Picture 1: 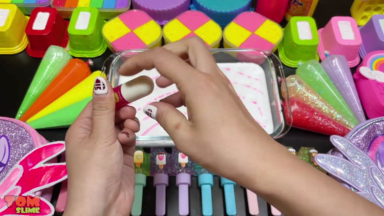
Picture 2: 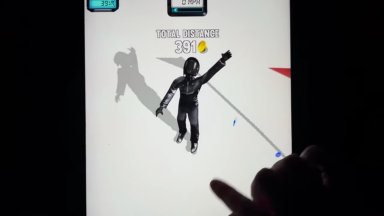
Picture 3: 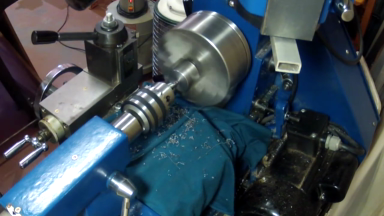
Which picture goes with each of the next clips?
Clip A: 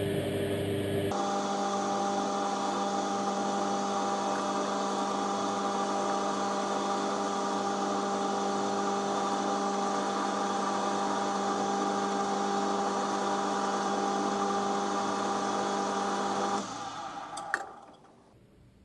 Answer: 3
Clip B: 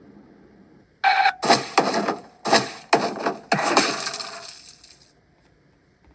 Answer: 2